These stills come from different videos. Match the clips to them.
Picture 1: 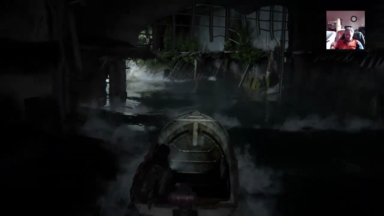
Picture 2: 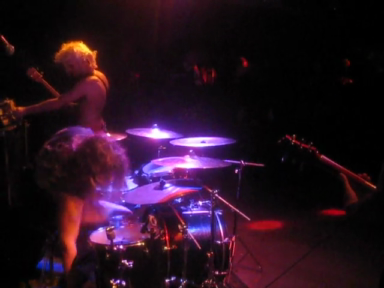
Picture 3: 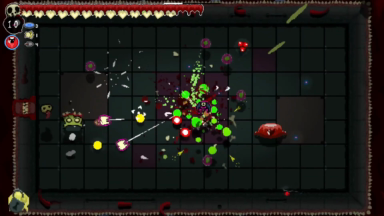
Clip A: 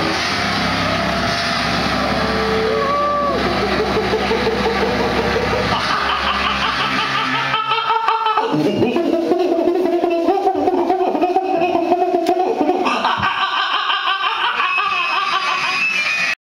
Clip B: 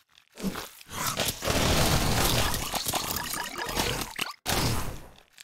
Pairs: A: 2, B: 3